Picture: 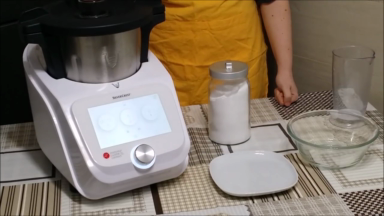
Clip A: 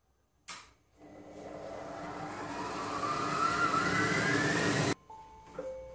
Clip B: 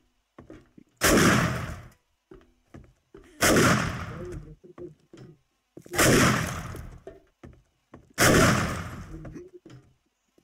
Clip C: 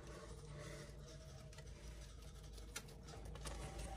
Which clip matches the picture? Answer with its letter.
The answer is A